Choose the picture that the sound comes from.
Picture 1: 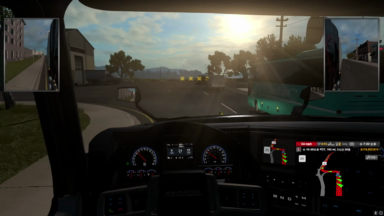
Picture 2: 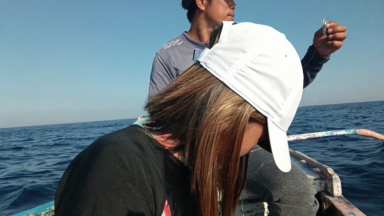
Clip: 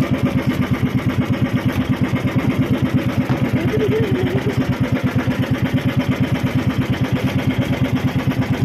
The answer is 2